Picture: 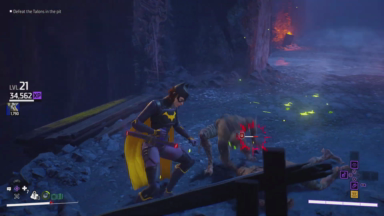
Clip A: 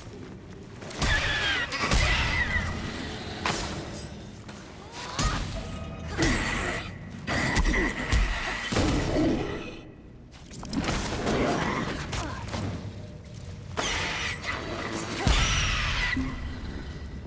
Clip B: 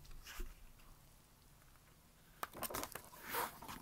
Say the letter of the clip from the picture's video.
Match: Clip A